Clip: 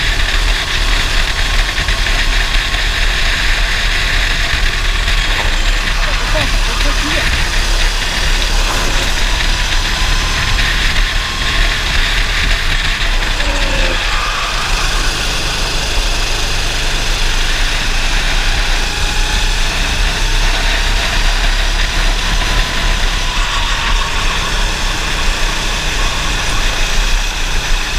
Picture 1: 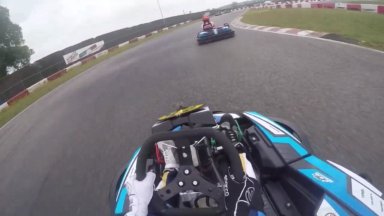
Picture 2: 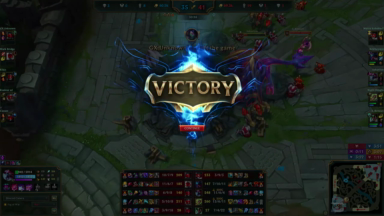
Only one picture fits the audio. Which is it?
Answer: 1